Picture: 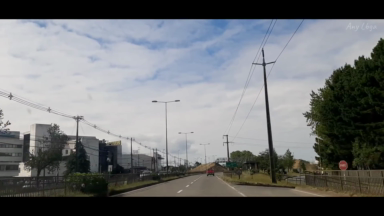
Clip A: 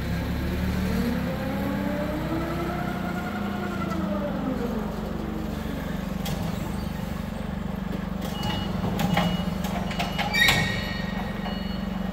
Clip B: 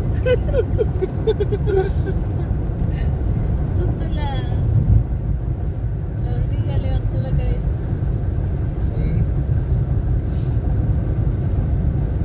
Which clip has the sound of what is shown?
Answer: B